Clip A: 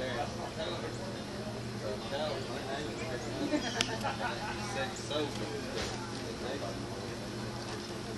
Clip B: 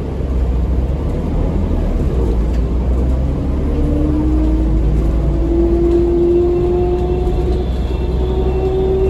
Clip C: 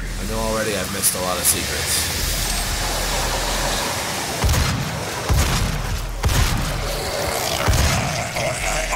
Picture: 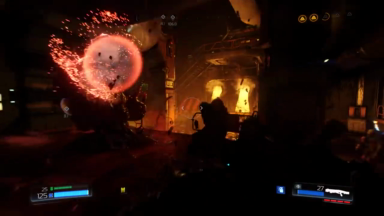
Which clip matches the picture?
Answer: C